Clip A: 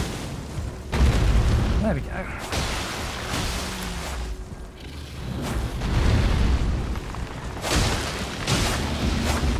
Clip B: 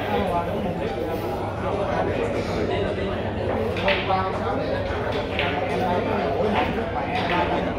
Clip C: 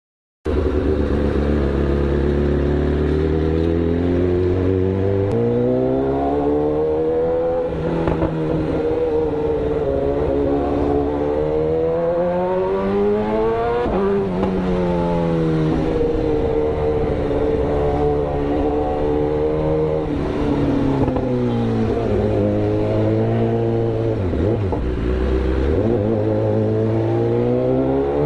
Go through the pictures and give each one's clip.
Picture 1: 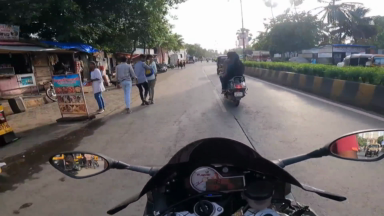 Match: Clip C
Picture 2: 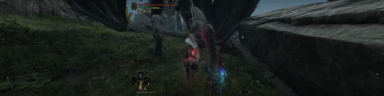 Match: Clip A